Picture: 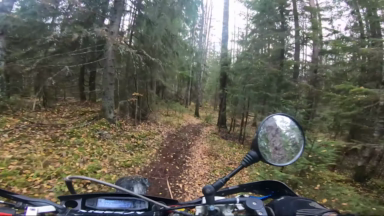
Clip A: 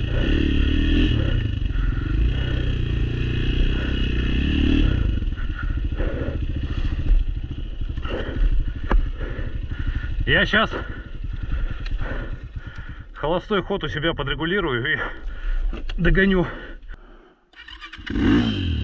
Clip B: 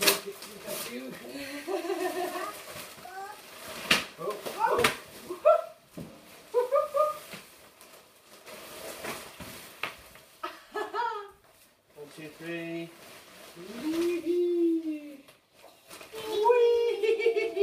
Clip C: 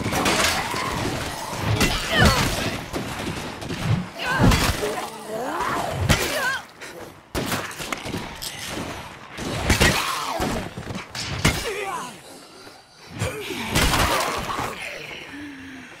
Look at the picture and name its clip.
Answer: A